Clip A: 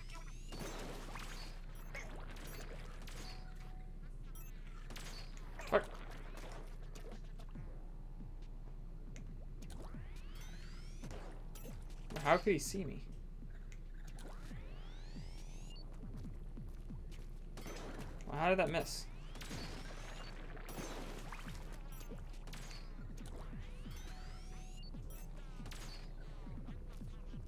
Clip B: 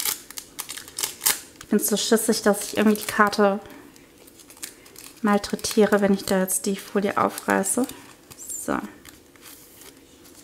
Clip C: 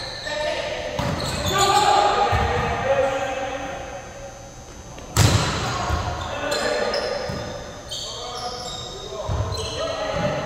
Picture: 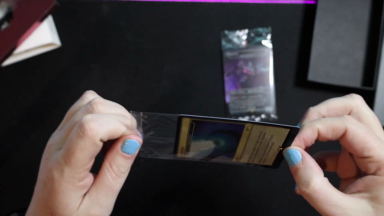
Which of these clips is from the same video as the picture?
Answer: B